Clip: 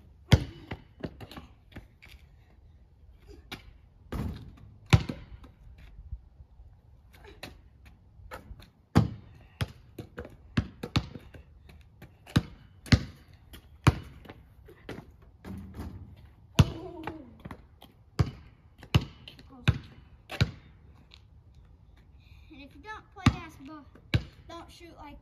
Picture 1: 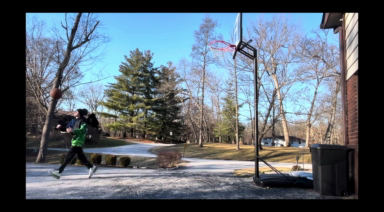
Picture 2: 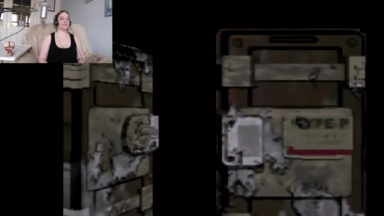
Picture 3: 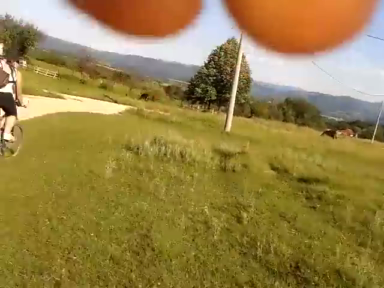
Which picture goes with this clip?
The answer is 1